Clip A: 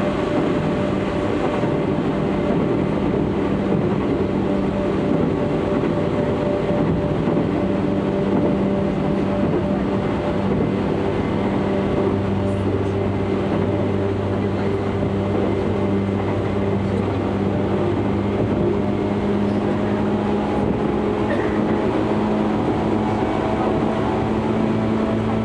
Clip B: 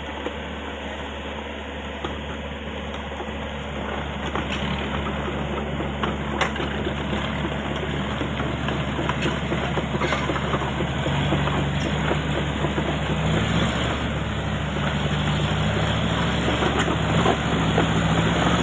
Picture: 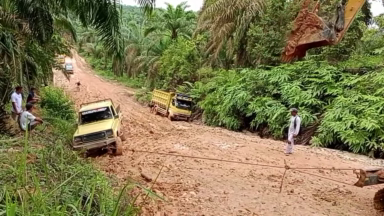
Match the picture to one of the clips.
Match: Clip B